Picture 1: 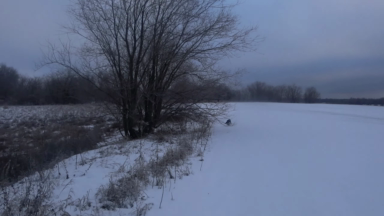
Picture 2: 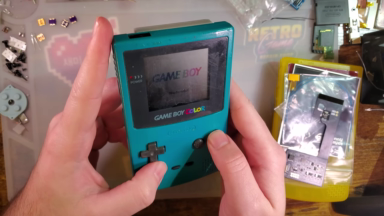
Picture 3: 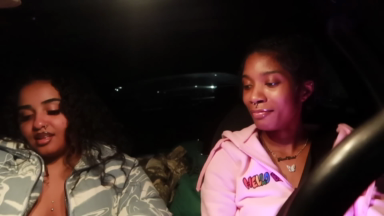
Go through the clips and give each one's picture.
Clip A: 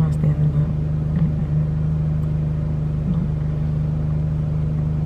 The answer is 3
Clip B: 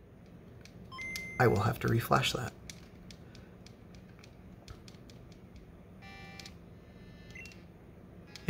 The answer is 2